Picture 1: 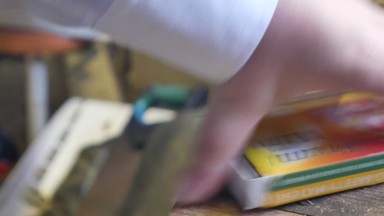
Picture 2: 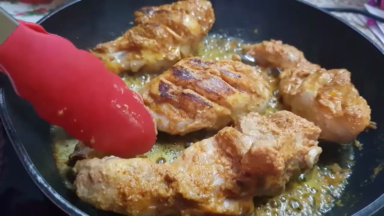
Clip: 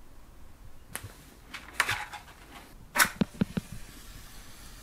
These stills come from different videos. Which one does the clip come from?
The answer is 1